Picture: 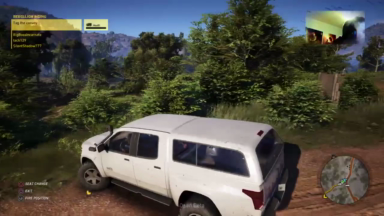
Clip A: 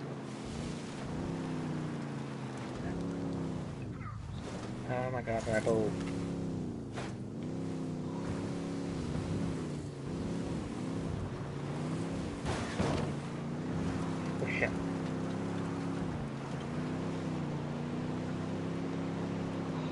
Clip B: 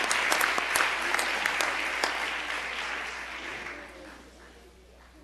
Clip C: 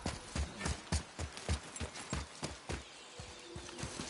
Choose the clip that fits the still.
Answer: A